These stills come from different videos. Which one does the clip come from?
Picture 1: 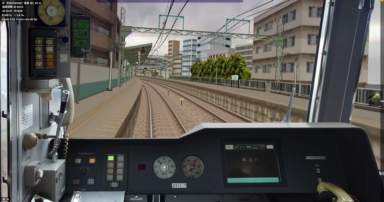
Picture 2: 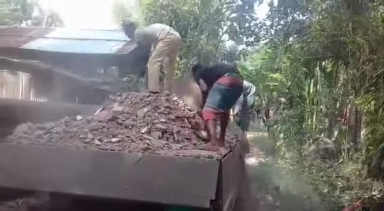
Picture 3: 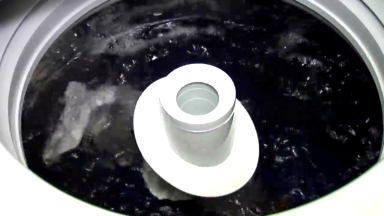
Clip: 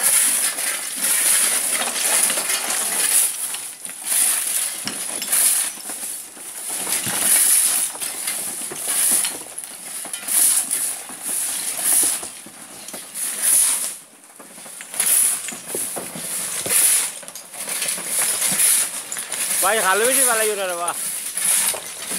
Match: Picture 2